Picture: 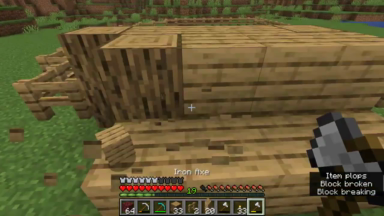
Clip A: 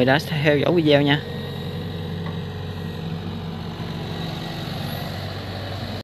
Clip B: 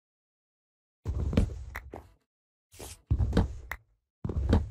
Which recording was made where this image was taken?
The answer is B